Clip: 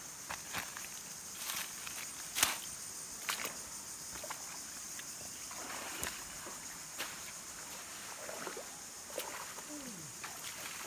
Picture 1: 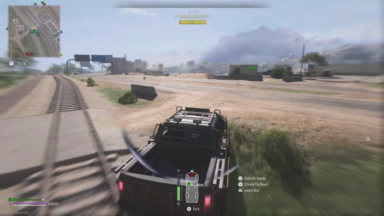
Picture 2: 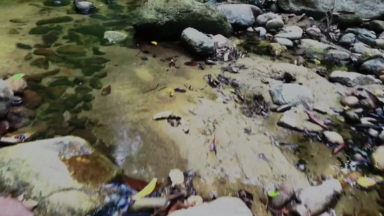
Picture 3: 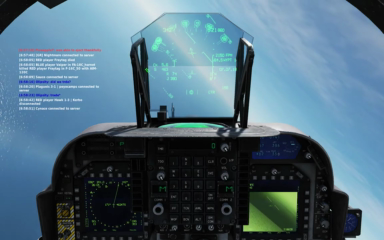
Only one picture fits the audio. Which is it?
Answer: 2